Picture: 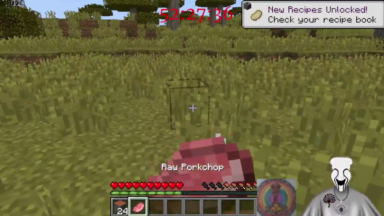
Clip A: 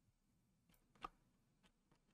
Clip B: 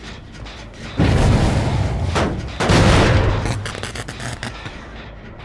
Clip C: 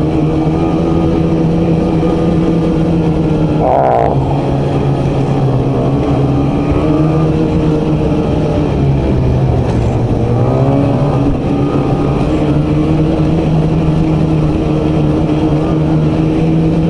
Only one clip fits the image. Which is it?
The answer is A